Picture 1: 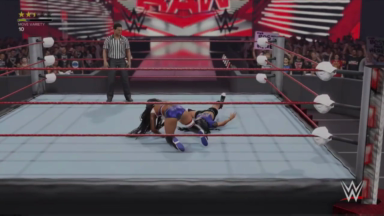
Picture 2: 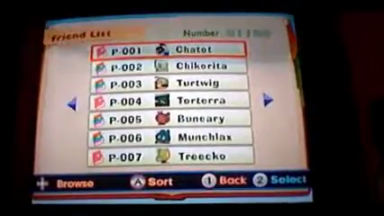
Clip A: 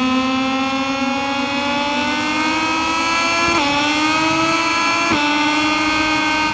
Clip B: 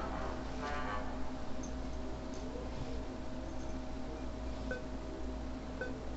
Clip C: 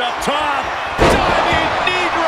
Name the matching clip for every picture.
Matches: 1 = C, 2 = B